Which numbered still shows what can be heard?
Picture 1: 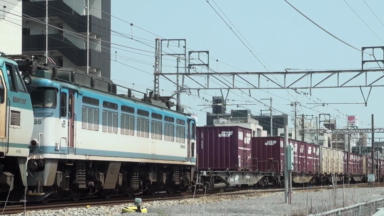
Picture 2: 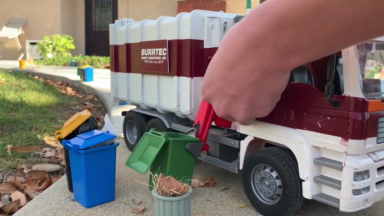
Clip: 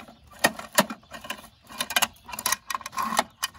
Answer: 2